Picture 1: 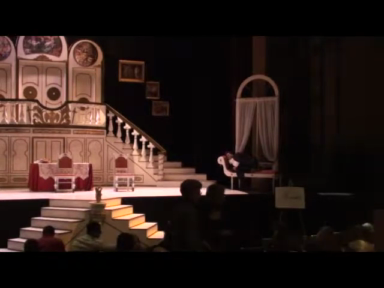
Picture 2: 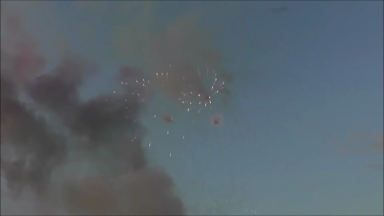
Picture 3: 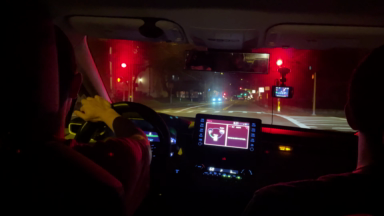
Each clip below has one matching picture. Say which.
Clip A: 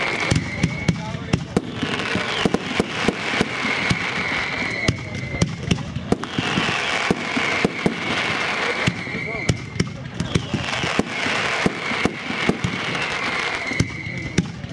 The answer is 2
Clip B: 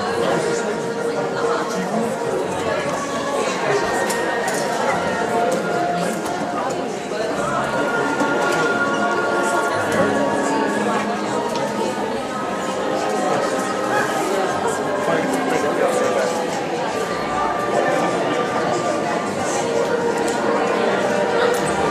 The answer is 1